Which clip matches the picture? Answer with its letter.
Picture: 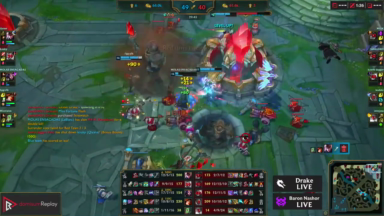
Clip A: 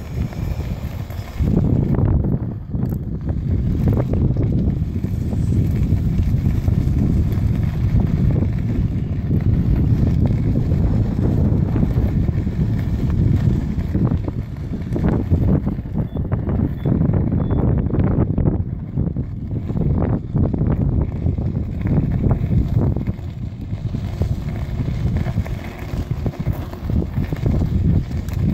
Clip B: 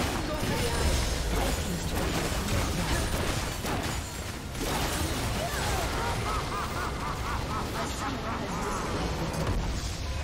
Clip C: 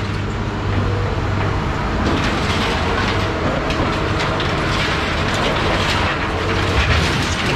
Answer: B